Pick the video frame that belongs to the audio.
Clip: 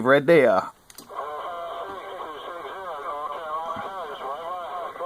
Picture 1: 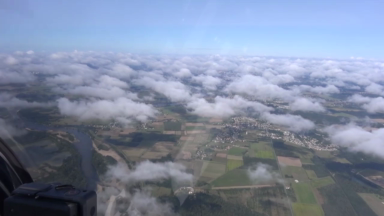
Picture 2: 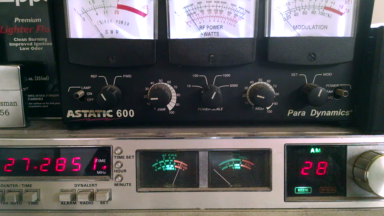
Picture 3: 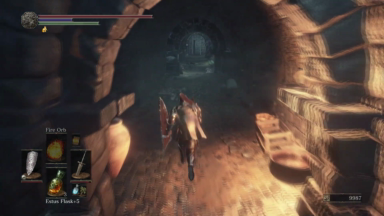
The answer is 2